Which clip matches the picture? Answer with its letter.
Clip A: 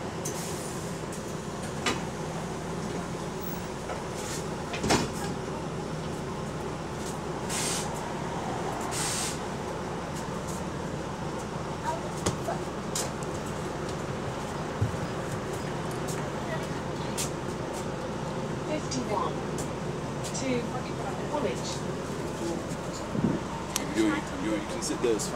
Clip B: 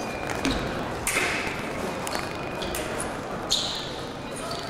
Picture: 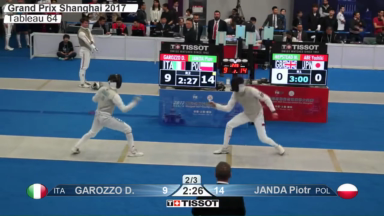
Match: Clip B